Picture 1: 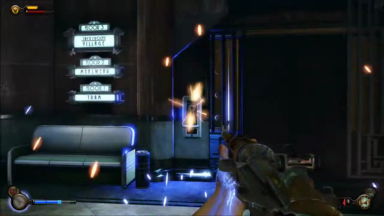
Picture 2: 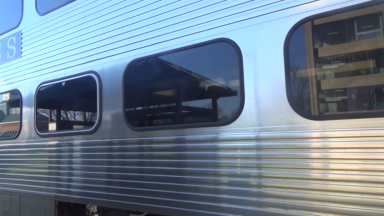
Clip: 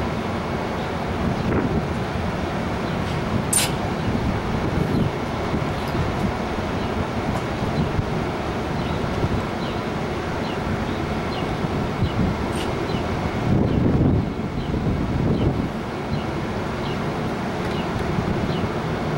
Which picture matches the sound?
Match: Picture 2